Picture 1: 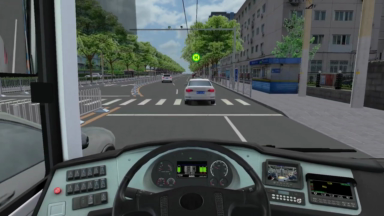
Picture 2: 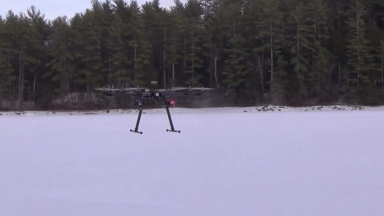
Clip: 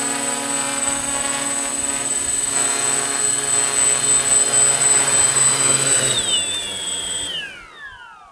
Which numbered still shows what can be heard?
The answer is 2